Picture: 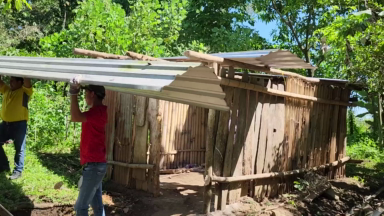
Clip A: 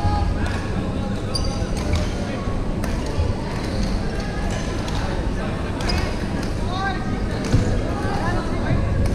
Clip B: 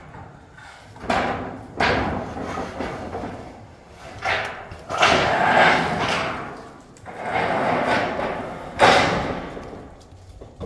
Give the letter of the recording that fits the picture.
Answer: B